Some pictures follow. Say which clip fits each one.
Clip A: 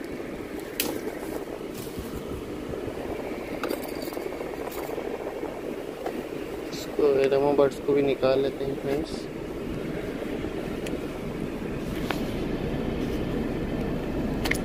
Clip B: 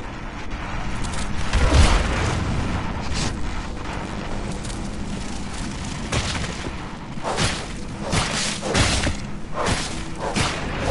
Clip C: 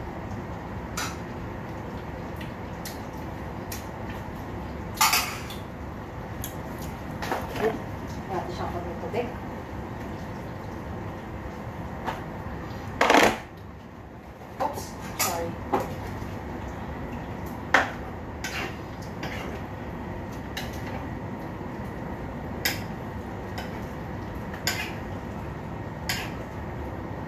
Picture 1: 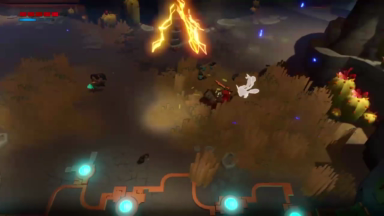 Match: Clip B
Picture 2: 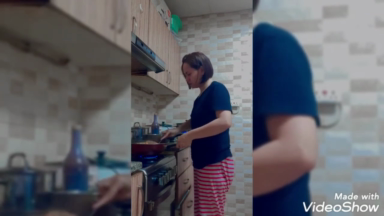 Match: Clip C